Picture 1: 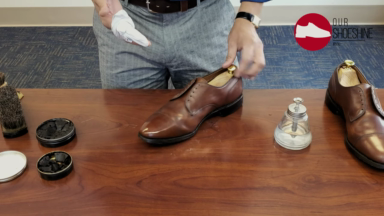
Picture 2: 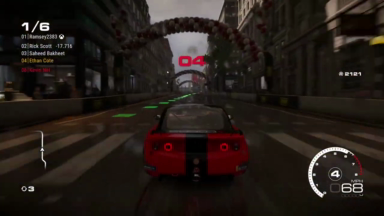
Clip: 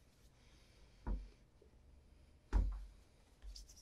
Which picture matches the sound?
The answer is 1